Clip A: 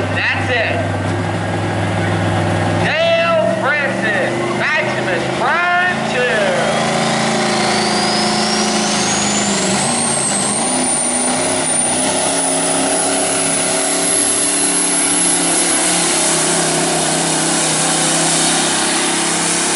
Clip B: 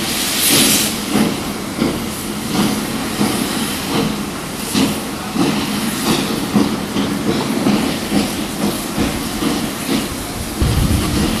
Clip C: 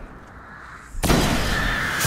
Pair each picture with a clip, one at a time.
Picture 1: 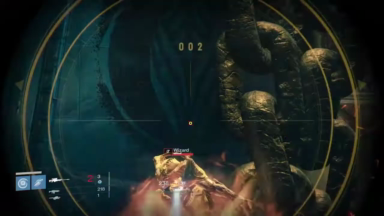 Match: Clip C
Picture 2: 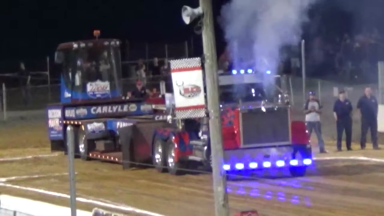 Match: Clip A